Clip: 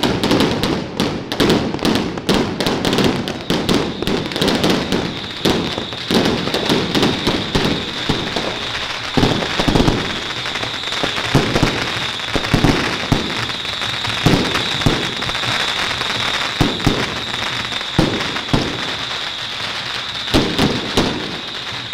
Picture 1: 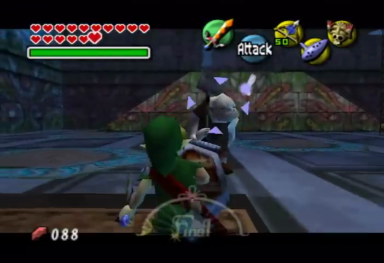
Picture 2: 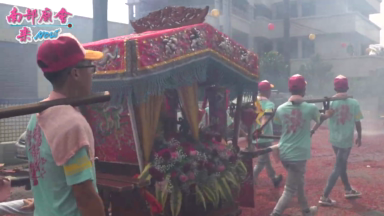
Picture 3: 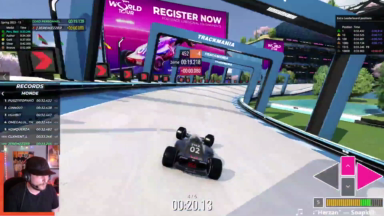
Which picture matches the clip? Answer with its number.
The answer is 2